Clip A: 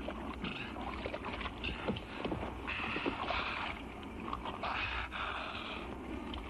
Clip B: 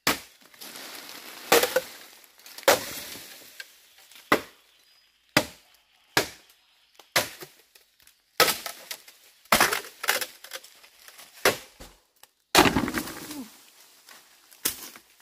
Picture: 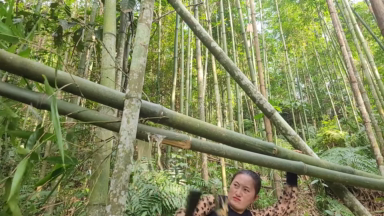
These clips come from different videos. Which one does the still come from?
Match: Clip B